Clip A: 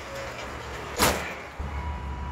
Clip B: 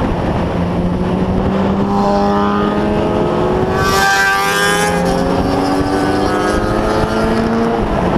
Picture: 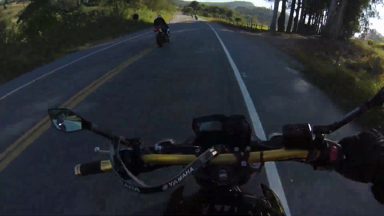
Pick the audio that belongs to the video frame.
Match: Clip B